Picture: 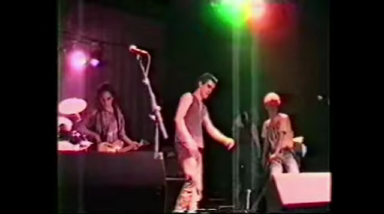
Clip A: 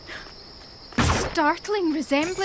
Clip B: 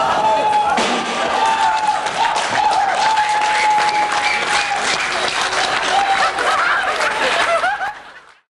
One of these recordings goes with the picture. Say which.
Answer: B